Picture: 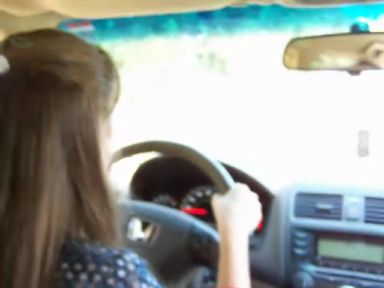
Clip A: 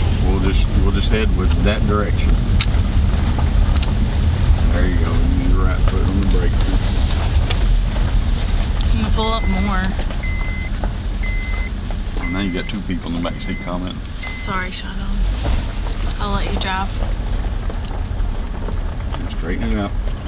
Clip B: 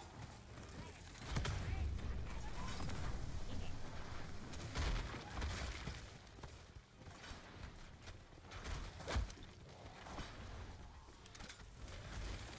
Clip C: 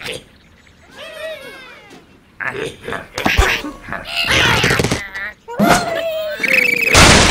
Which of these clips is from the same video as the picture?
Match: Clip A